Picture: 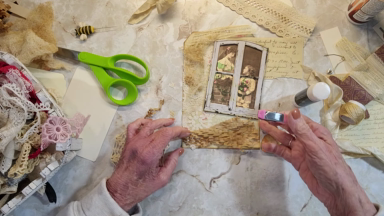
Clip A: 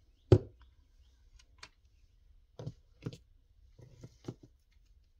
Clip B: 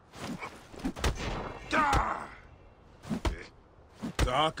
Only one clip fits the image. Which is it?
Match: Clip A